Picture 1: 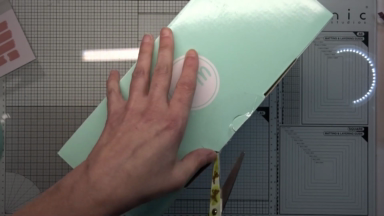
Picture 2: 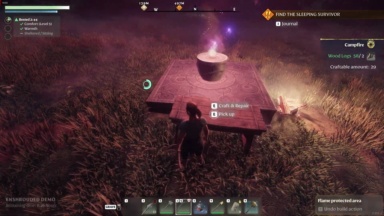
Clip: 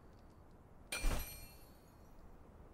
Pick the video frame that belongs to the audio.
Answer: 2